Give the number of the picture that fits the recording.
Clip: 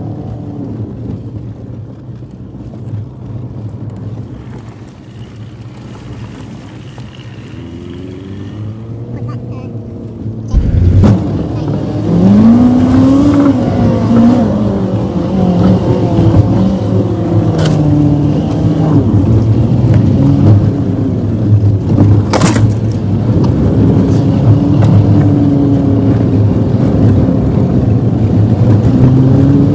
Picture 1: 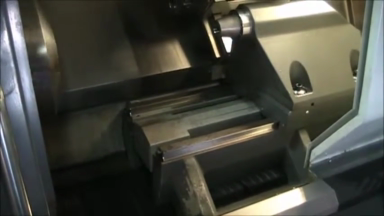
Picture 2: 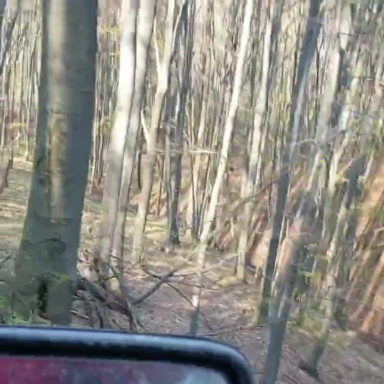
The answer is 2